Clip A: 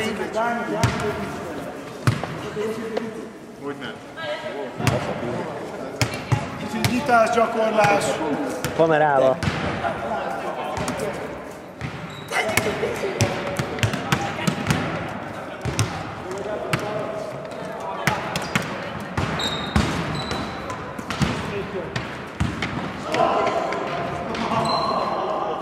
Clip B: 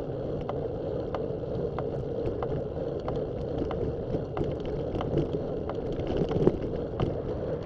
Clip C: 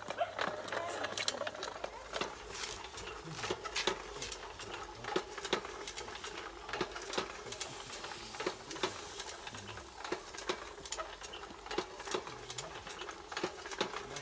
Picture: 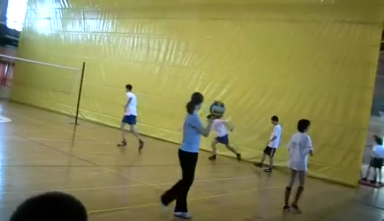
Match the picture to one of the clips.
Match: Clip A